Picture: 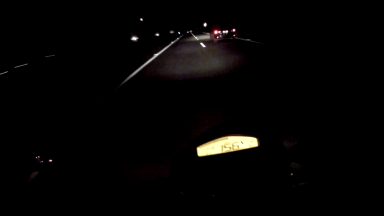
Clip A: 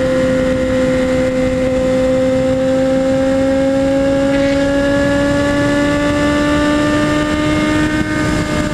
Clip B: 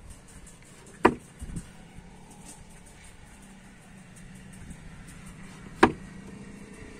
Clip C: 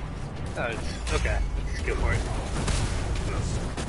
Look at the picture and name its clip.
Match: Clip A